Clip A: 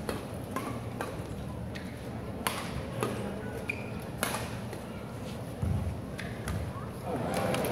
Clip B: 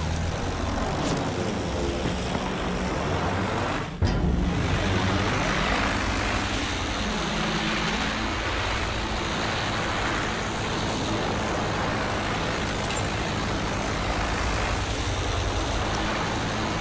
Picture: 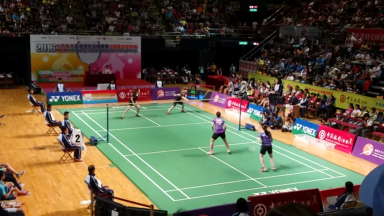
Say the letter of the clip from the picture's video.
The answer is A